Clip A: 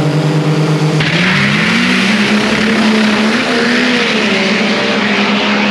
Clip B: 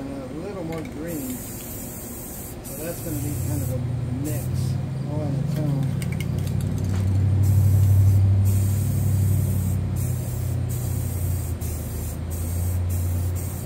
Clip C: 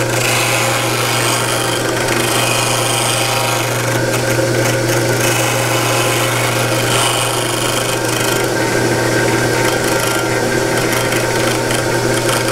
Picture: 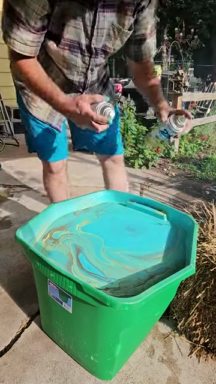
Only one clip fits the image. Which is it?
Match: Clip B